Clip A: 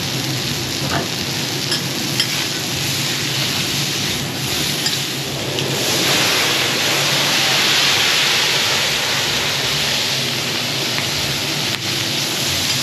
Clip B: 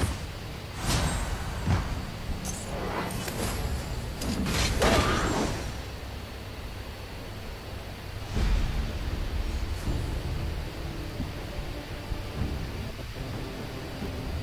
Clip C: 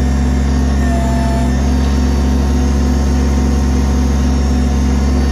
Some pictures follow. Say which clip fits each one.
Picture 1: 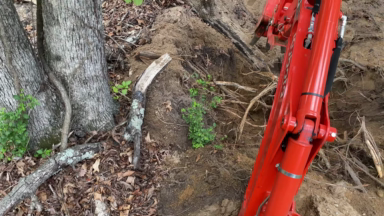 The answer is C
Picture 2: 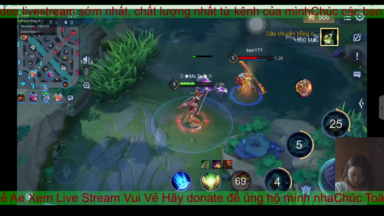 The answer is B